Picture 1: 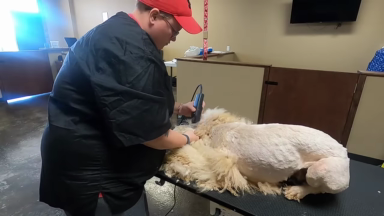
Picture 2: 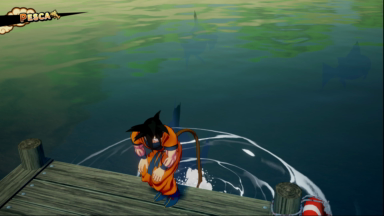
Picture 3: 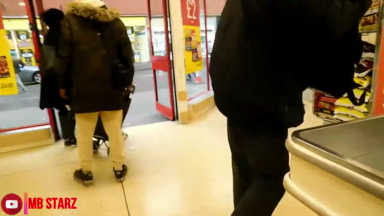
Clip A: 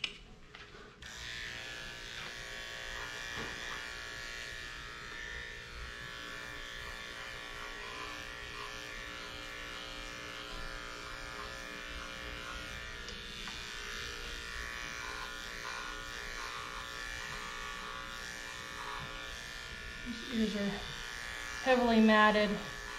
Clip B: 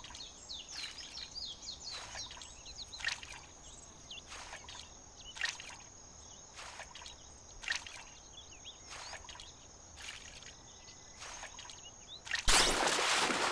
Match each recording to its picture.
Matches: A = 1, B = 2